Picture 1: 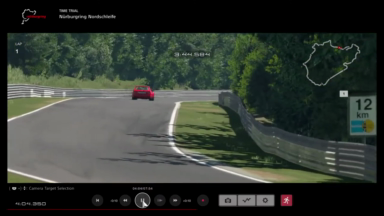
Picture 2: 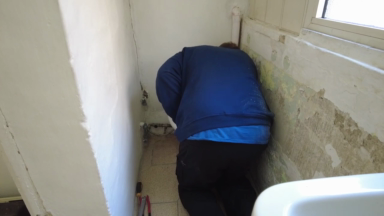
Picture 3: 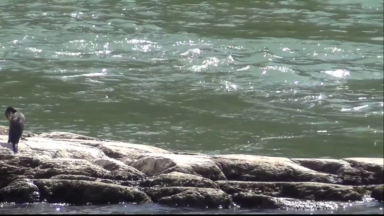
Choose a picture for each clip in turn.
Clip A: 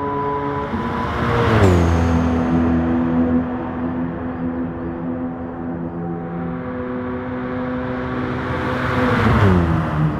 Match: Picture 1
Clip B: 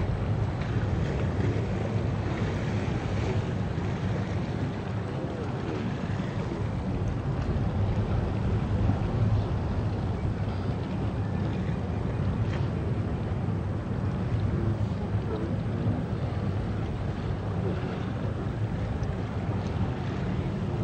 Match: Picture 3